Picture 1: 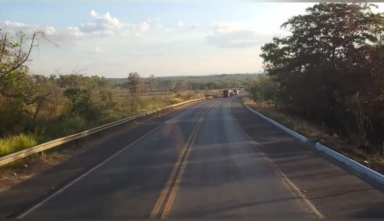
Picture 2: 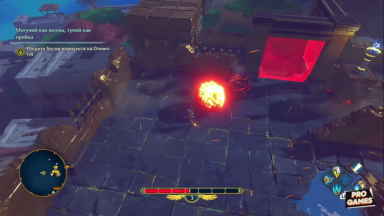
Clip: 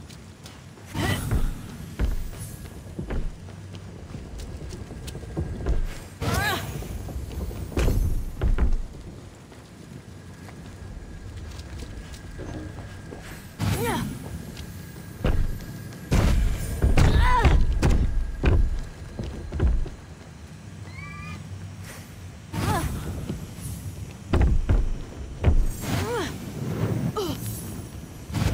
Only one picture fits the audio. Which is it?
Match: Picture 2